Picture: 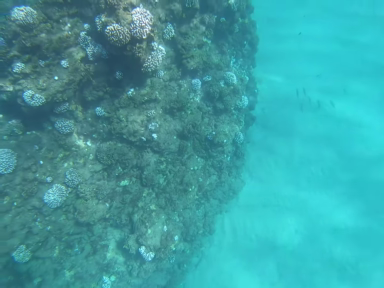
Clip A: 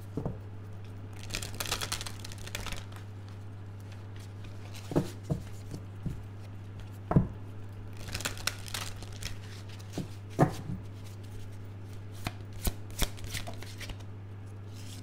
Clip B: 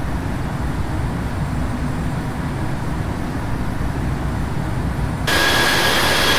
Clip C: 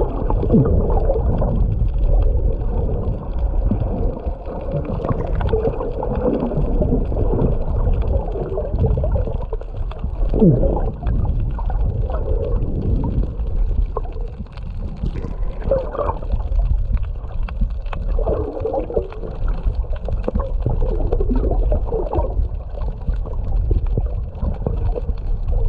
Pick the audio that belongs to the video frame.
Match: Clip C